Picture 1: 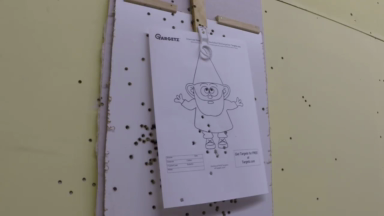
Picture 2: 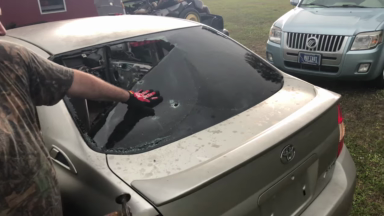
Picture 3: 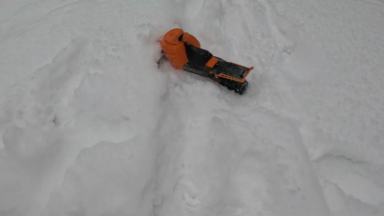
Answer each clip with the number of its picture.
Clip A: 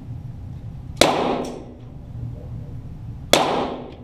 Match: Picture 1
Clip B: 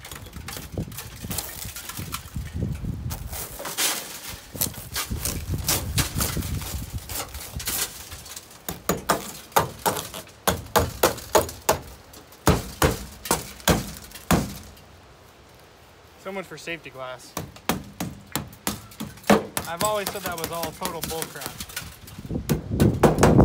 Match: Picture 2